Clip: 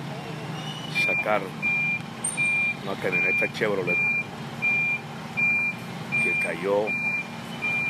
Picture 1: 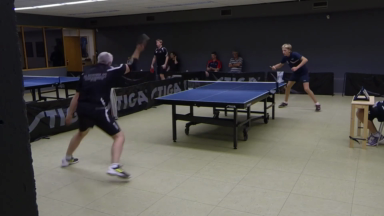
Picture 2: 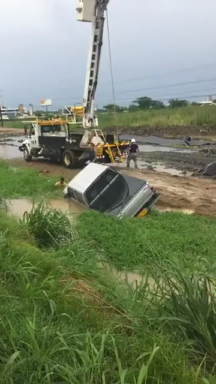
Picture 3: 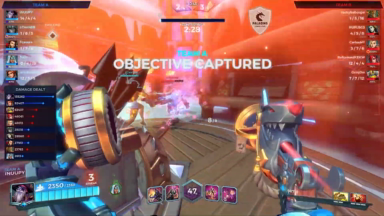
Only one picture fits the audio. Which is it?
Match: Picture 2